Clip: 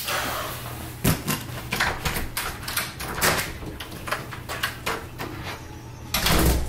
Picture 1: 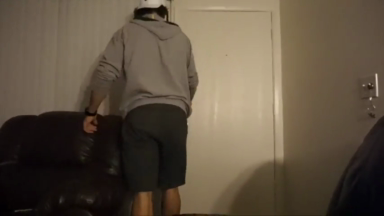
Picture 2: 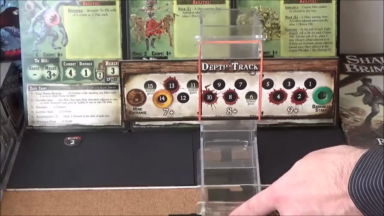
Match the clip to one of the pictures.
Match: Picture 1